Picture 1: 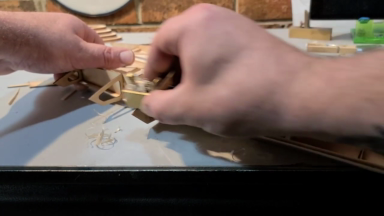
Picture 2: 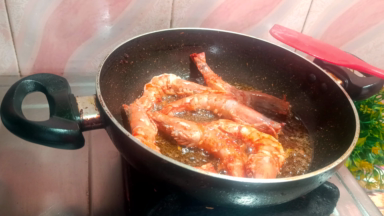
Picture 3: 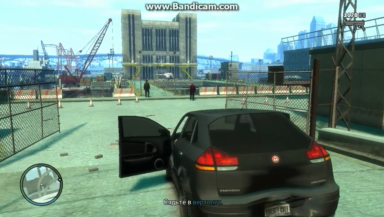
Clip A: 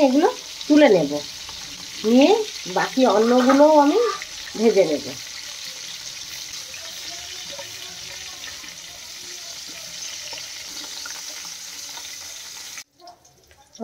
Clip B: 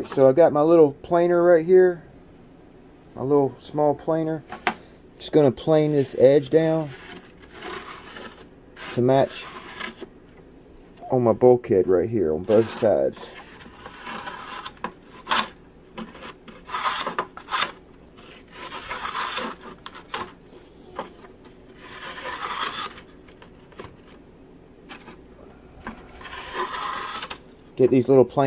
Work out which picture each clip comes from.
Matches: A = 2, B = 1